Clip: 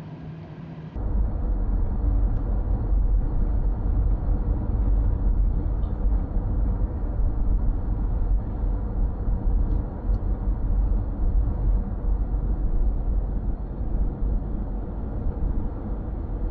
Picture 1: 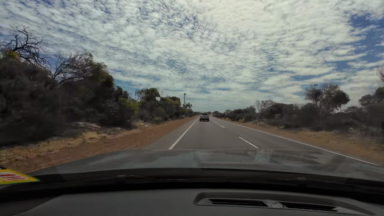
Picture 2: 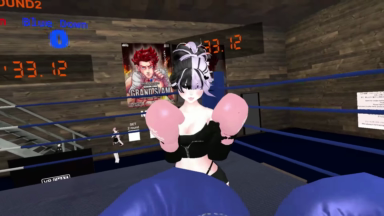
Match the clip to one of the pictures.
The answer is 1